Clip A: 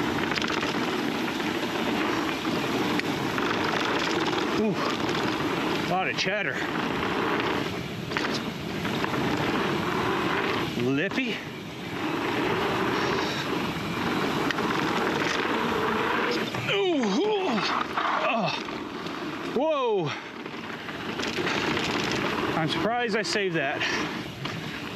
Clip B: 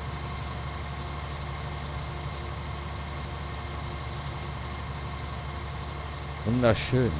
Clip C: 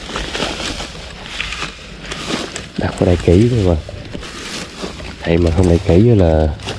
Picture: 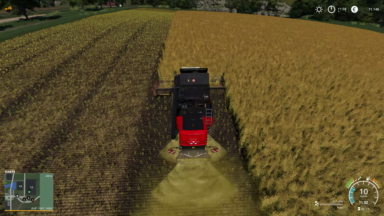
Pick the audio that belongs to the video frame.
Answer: B